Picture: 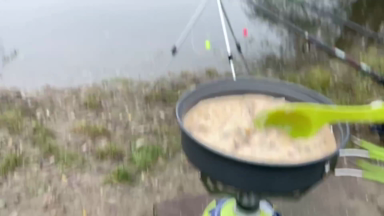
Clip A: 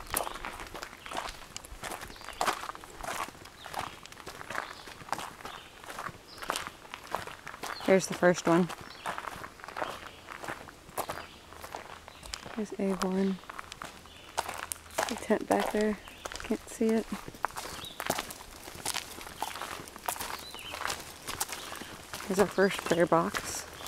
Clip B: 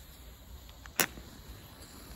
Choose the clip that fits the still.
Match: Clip B